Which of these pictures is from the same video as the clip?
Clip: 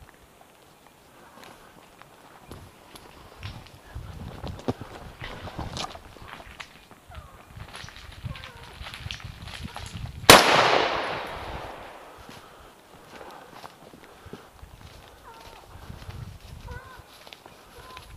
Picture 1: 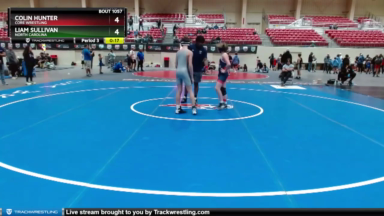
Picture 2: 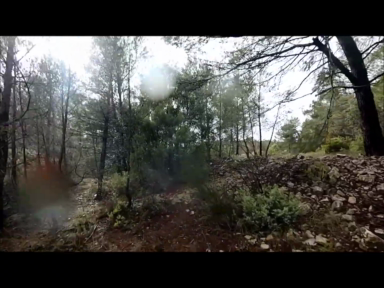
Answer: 2